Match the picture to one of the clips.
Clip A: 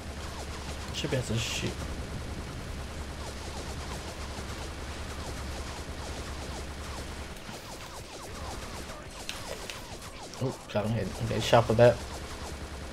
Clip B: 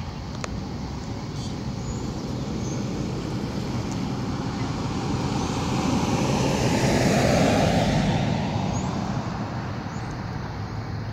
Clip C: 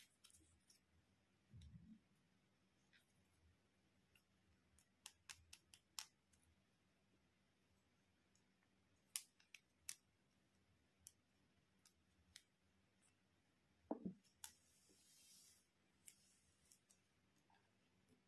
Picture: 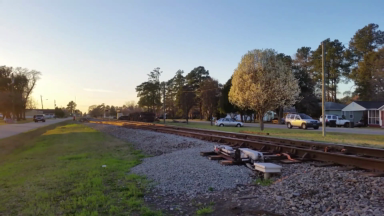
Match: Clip B